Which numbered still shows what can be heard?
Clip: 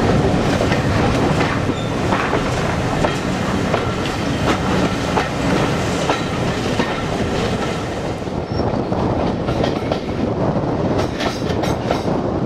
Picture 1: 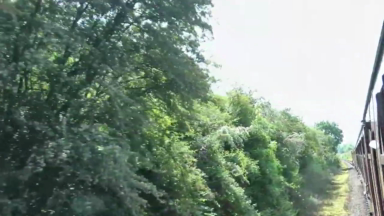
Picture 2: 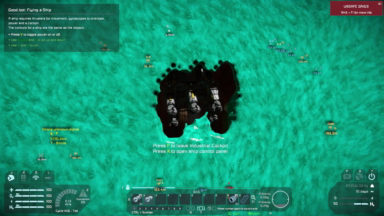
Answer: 1